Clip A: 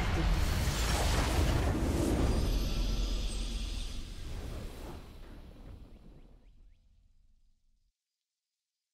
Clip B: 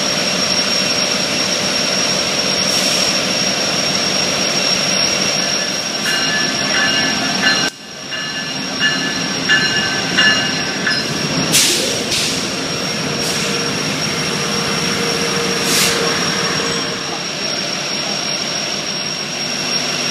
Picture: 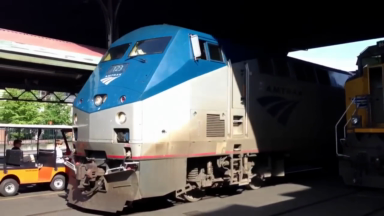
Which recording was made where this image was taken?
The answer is B